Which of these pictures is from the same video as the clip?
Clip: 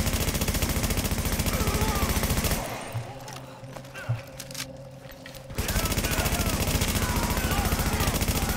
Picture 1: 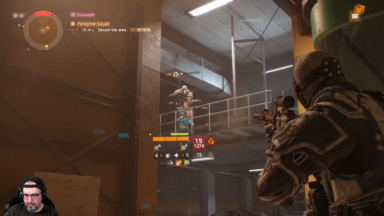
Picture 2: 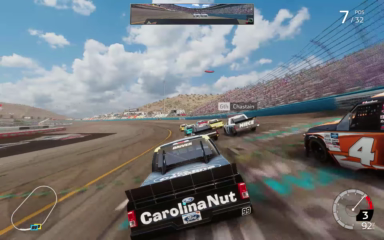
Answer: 1